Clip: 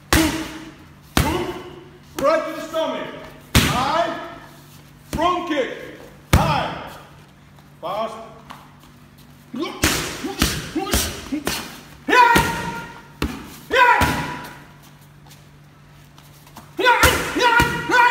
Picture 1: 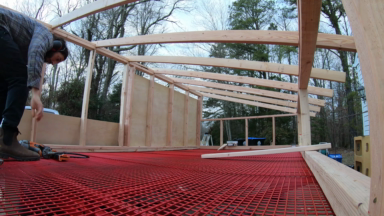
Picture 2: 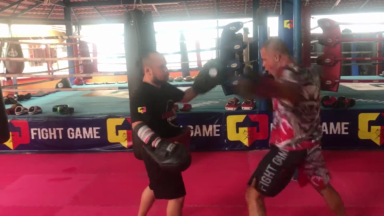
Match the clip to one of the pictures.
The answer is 2